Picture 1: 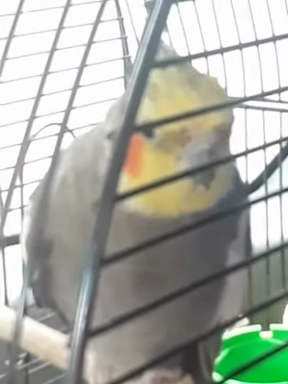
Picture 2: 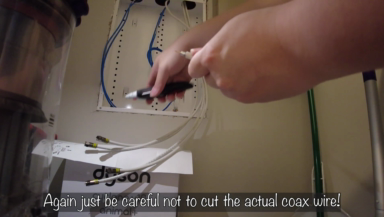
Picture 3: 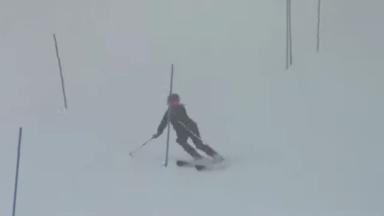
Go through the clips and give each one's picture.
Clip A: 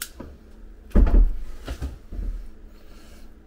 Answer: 2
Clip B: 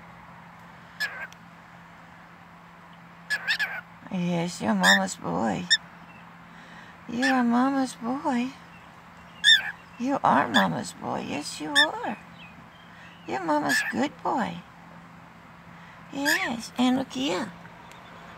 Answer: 1